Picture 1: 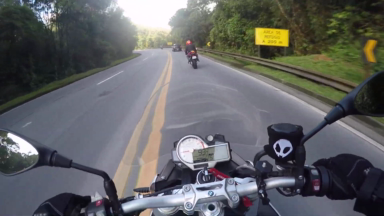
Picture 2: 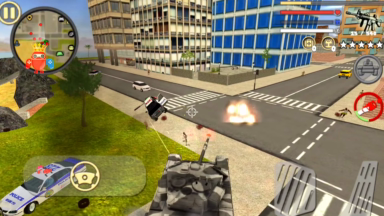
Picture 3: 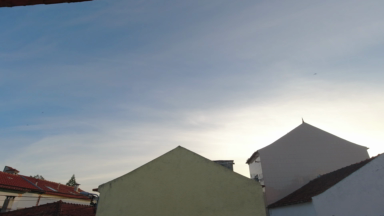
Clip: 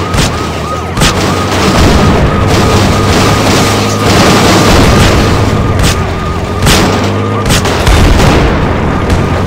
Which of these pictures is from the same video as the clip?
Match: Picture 2